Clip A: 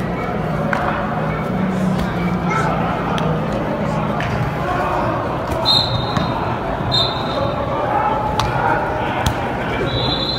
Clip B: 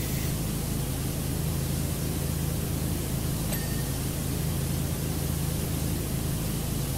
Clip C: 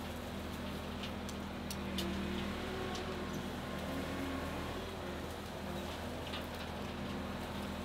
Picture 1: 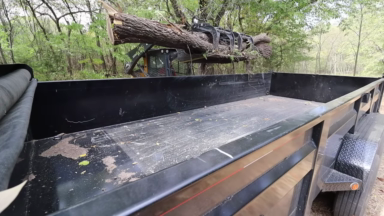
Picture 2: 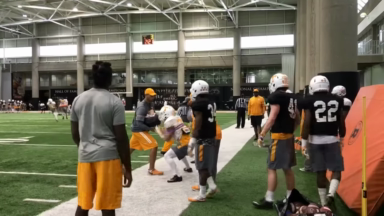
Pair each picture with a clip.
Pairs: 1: C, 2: A